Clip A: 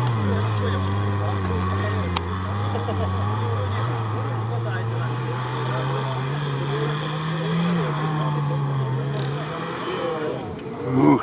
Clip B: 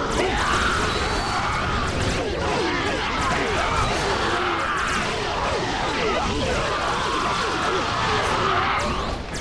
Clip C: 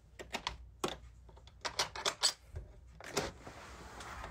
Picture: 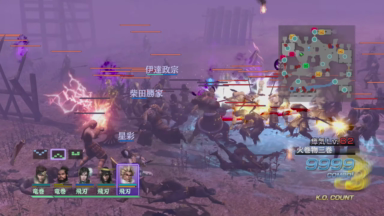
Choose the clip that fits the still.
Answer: B